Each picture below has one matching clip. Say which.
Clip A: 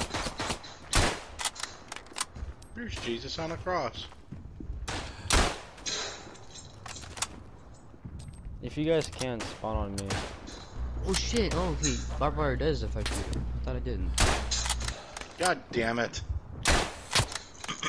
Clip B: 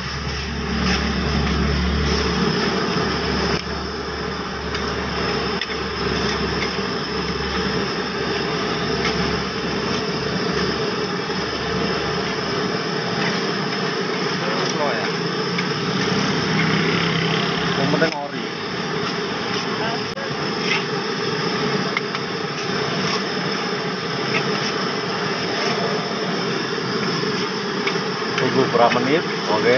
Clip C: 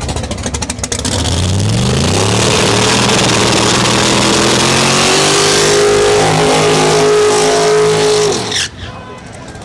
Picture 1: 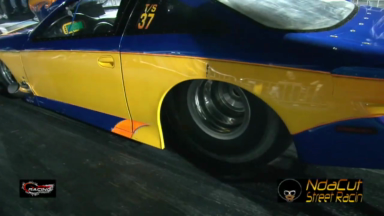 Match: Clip C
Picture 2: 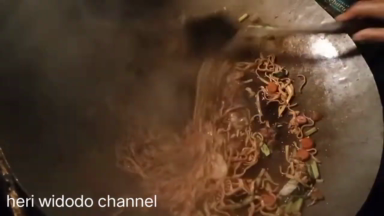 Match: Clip B